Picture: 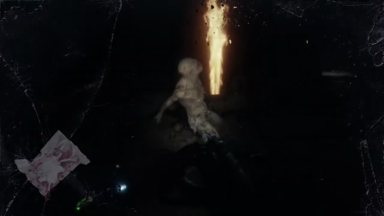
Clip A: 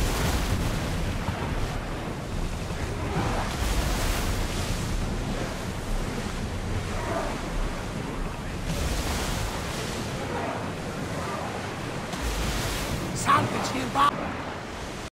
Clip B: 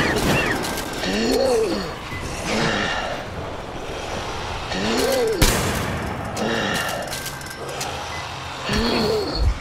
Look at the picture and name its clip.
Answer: B